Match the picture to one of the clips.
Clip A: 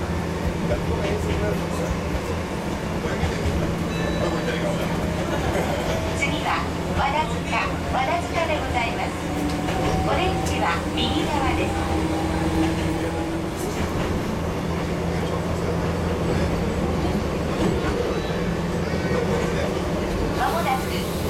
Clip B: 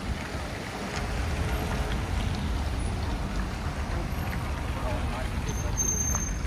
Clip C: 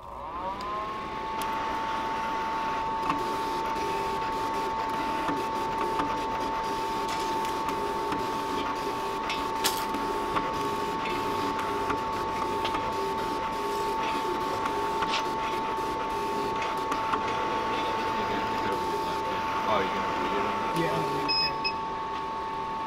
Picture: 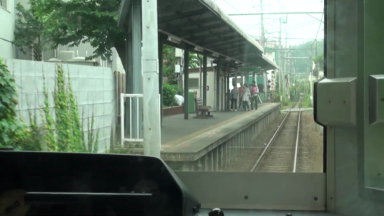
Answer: A